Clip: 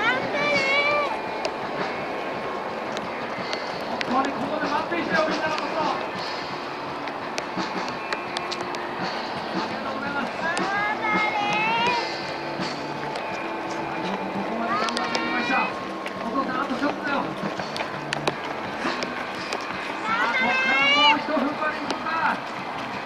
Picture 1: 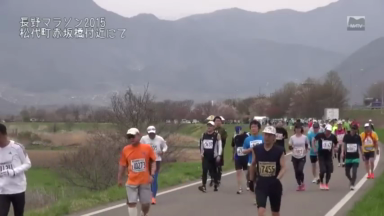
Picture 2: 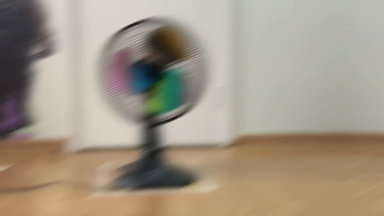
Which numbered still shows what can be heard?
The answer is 1